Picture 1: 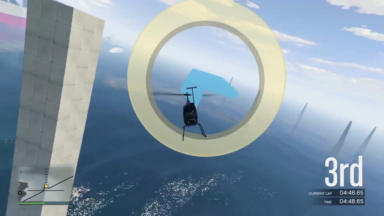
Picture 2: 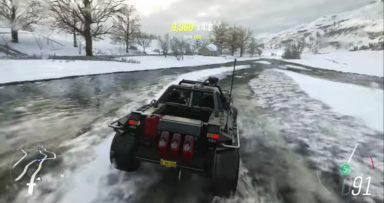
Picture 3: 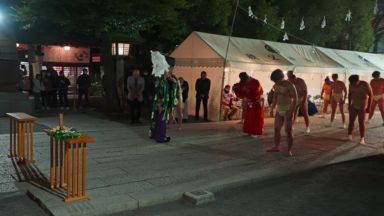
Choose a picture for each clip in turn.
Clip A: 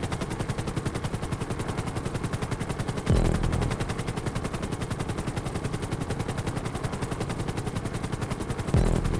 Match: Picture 1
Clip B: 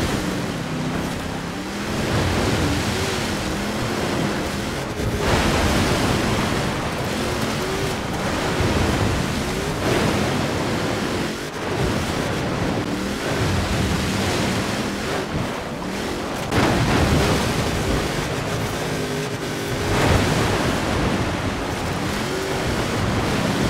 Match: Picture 2